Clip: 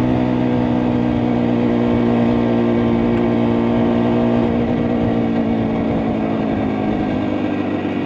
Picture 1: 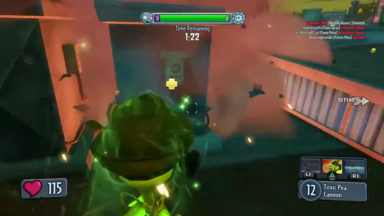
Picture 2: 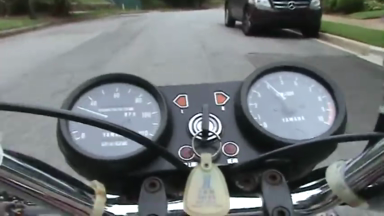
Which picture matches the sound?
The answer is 2